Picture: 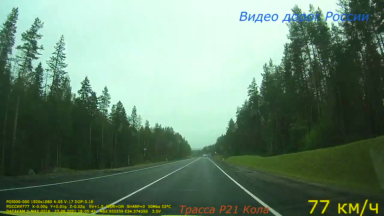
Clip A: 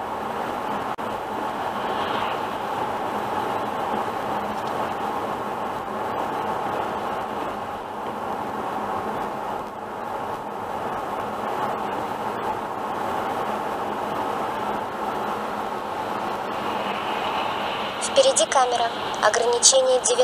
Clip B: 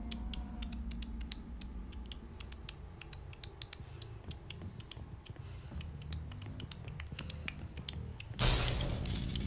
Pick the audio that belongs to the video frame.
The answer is A